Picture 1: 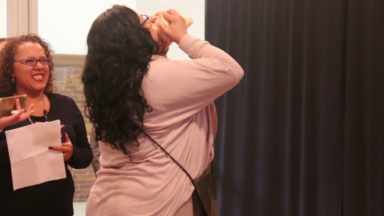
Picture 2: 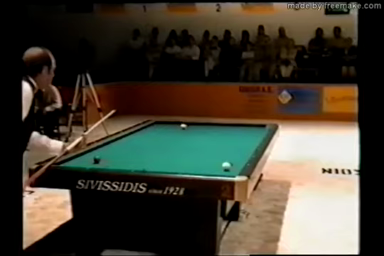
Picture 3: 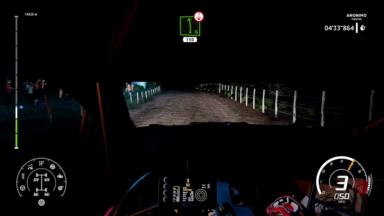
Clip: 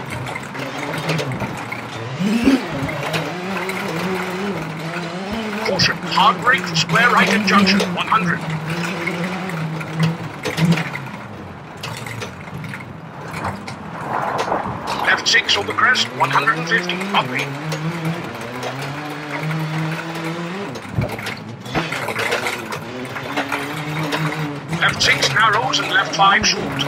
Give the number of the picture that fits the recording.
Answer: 3